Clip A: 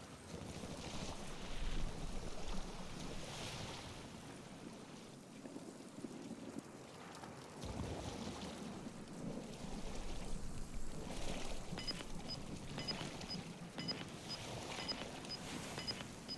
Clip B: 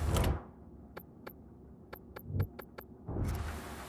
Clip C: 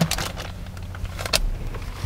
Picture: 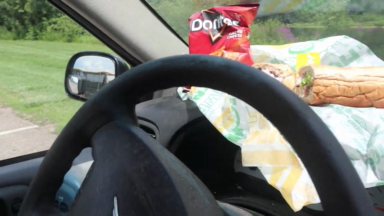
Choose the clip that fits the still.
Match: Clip C